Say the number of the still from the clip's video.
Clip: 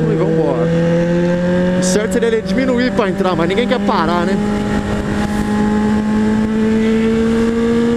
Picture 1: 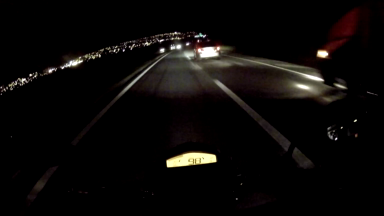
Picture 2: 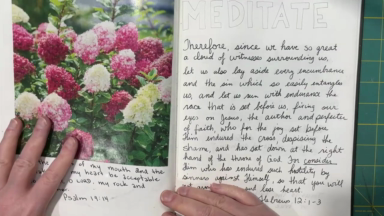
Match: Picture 1